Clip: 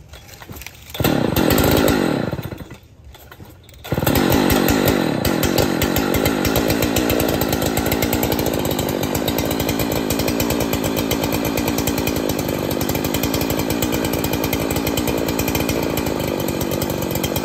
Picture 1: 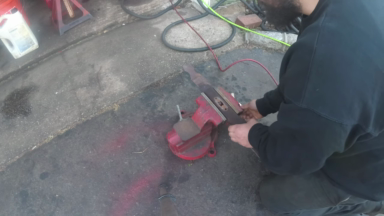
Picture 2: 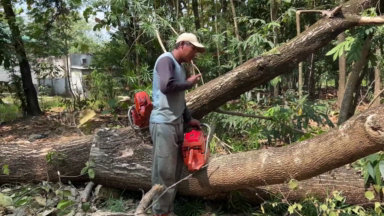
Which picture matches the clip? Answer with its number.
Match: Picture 2